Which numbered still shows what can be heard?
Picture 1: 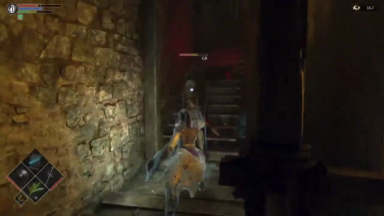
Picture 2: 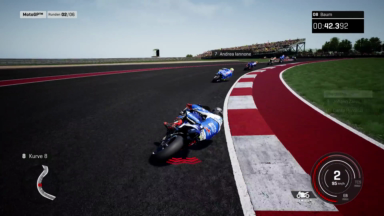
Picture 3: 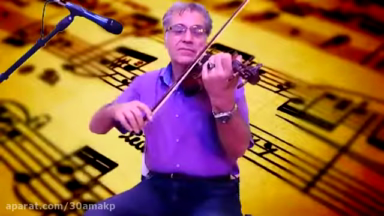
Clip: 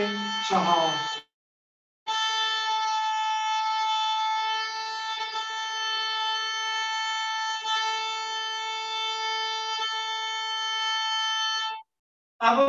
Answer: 3